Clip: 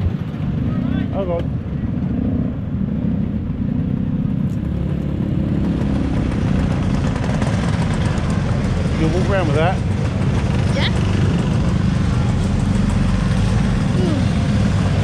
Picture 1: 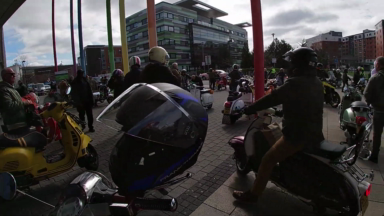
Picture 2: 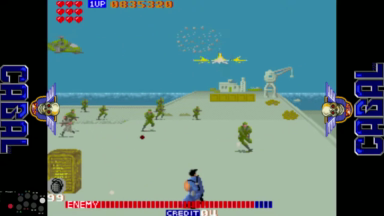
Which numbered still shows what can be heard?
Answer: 1